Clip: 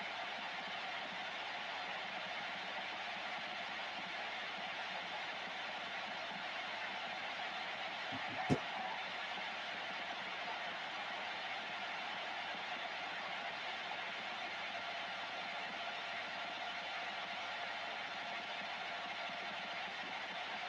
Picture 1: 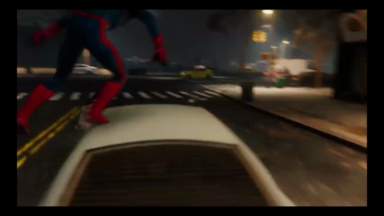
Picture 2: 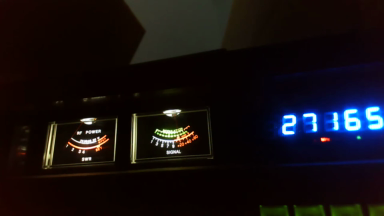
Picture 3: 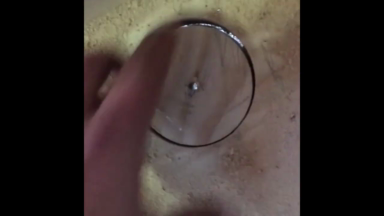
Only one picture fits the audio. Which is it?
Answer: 2